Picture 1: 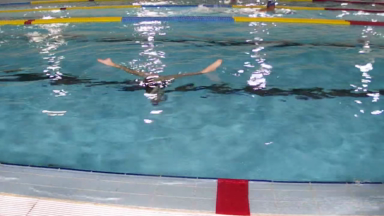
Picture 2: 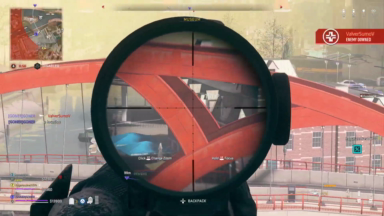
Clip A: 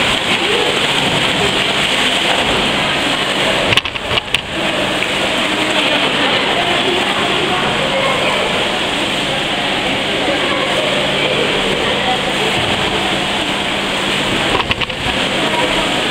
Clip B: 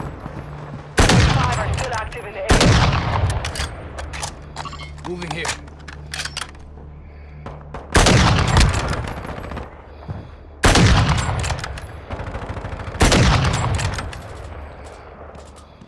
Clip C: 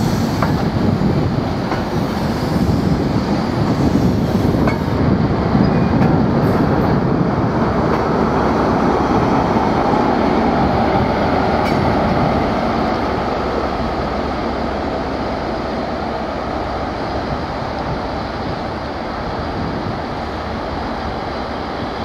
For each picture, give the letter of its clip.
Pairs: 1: A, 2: B